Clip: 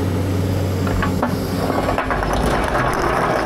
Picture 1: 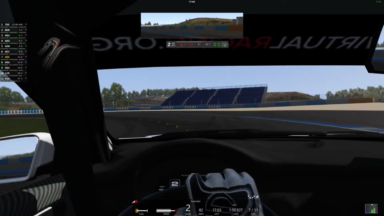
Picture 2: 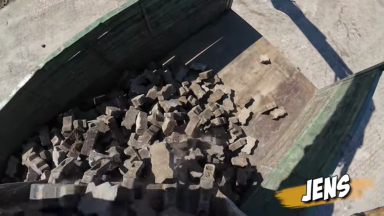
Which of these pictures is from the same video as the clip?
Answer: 2